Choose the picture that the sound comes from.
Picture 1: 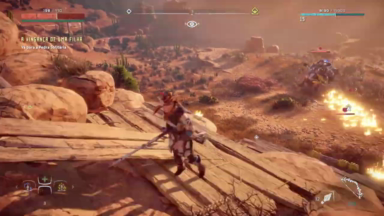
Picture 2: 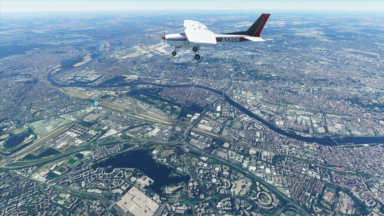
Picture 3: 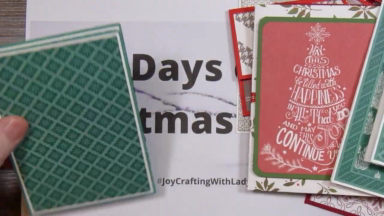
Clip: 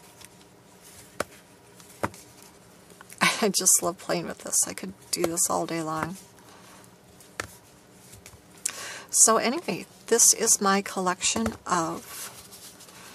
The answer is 3